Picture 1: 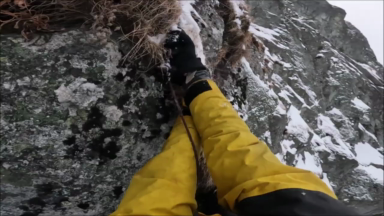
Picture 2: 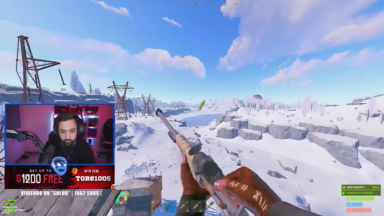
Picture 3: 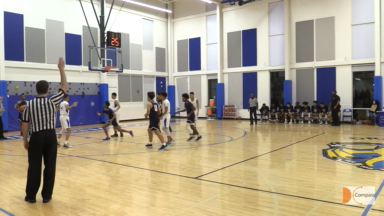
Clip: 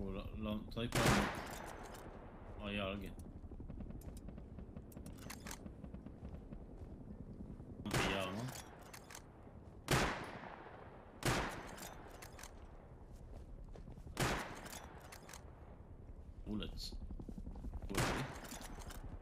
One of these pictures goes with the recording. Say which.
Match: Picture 2